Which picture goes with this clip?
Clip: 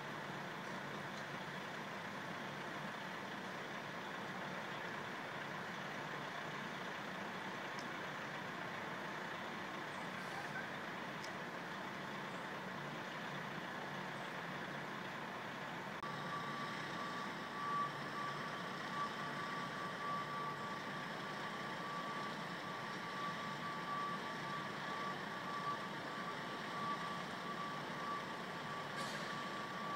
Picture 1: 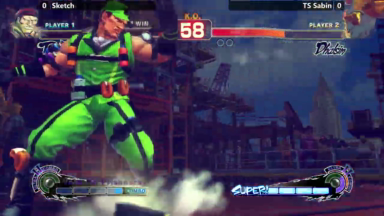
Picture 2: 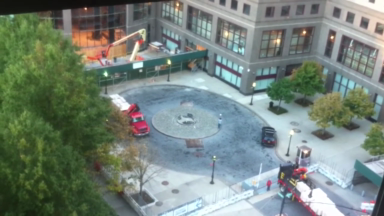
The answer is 2